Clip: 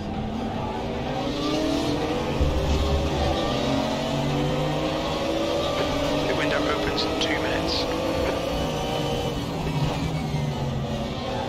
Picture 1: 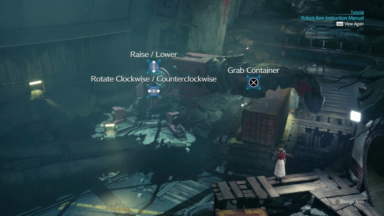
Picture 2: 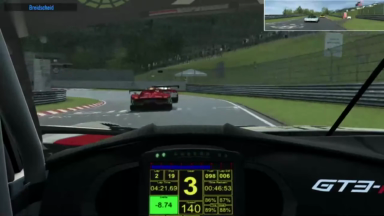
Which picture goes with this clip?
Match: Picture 2